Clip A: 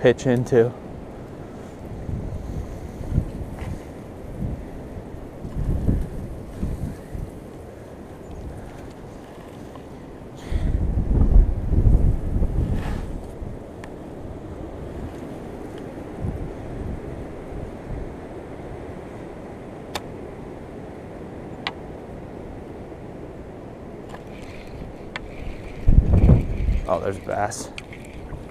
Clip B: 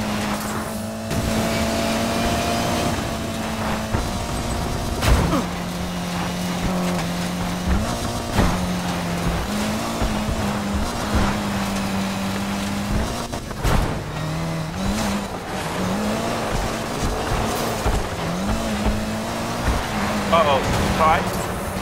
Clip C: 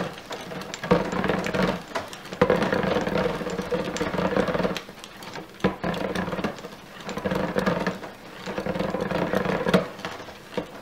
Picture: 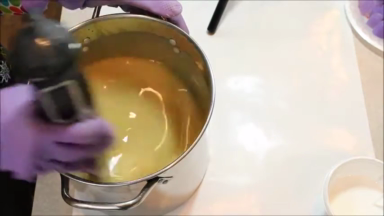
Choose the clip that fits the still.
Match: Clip C